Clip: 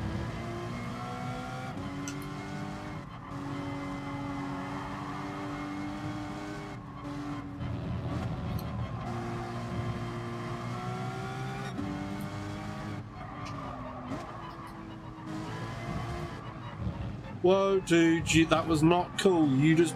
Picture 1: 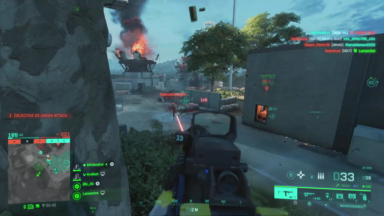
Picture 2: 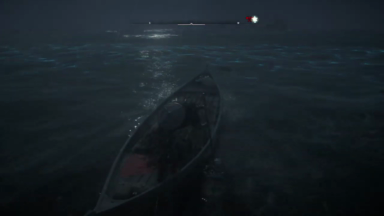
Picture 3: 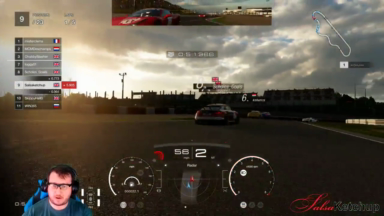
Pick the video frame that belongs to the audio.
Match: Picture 3